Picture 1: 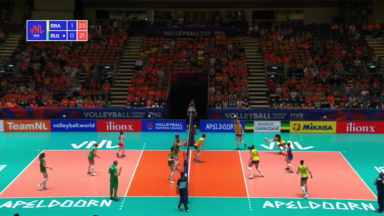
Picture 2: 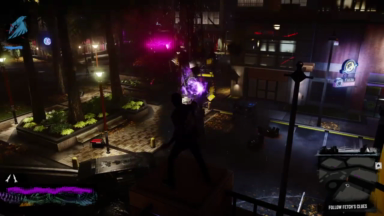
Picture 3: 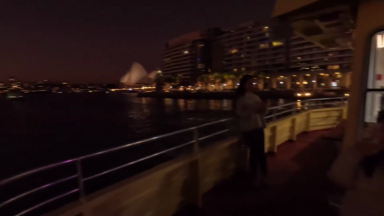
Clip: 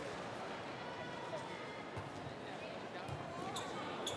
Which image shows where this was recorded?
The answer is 1